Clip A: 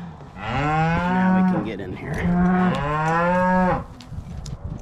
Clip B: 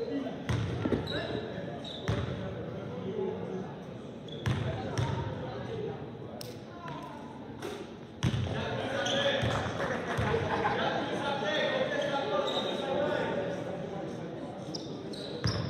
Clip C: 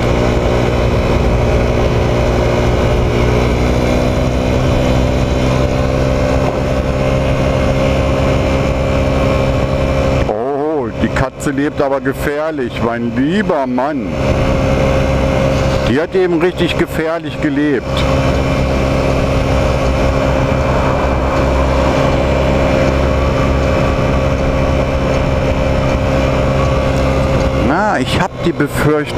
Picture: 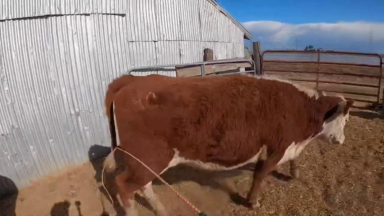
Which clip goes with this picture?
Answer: A